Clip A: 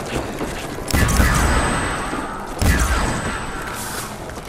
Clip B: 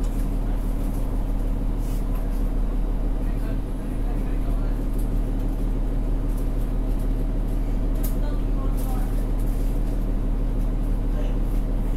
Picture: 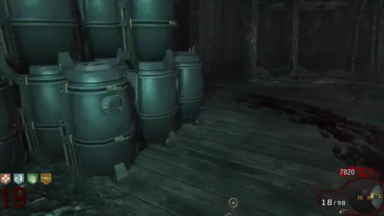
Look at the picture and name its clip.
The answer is A